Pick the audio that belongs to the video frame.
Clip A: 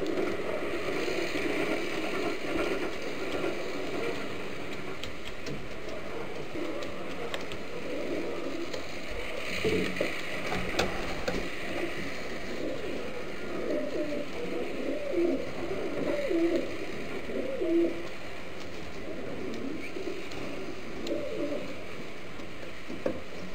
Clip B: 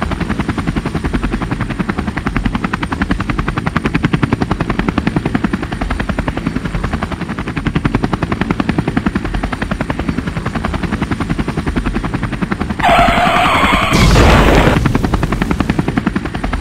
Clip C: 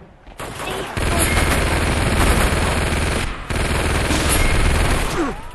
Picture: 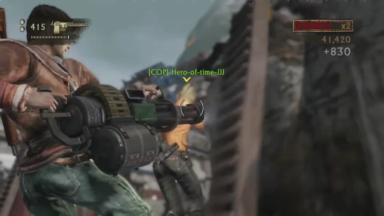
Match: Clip C